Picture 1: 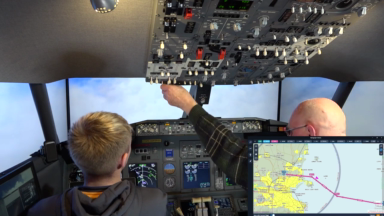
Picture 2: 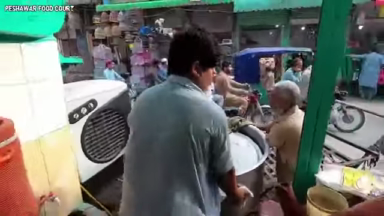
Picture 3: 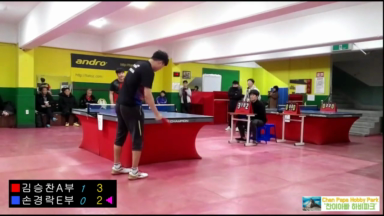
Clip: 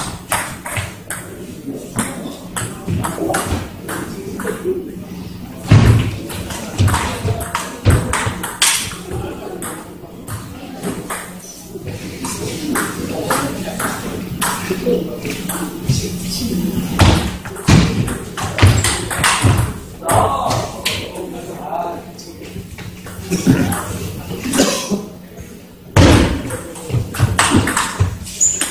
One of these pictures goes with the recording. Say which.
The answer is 3